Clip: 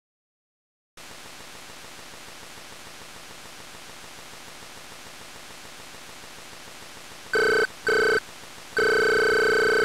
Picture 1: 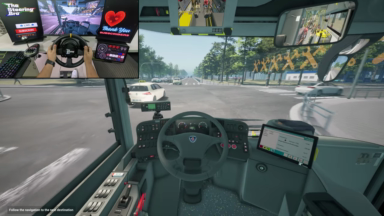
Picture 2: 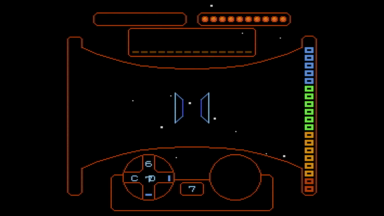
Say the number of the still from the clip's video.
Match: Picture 2